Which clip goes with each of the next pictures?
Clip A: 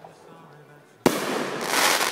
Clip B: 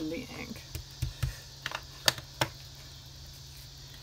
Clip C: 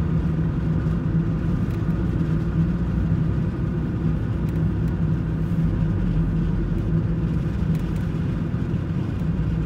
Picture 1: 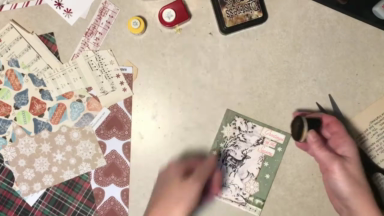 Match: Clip B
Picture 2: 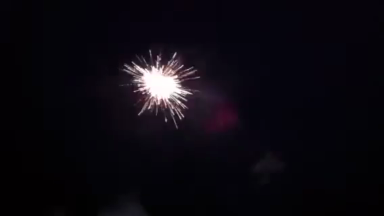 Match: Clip A